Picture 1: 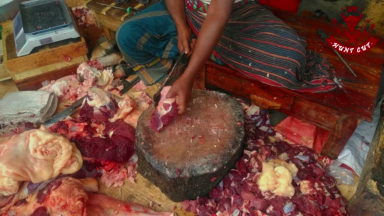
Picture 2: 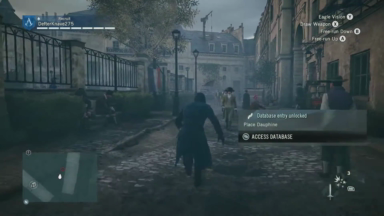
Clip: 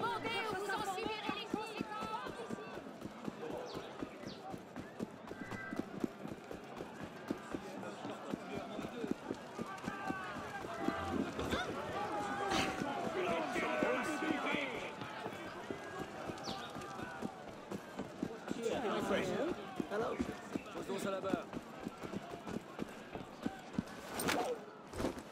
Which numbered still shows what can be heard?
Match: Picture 2